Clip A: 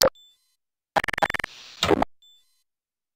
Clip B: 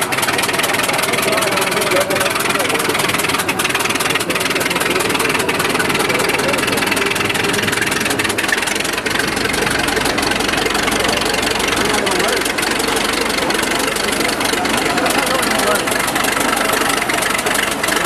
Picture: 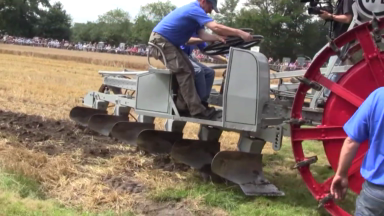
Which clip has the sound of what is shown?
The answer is B